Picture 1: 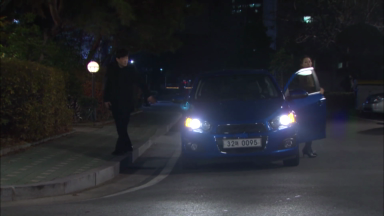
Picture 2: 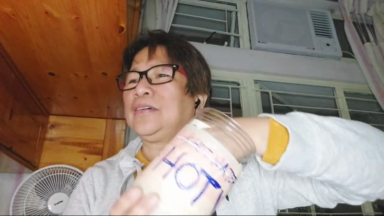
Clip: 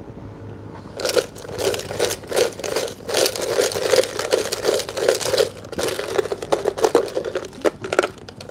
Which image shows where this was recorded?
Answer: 2